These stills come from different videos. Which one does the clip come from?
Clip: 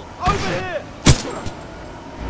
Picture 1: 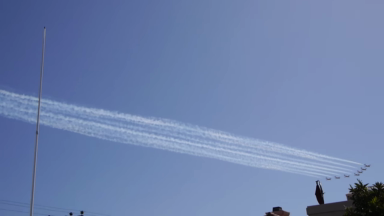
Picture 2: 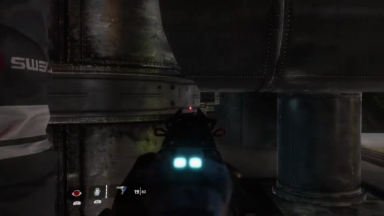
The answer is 2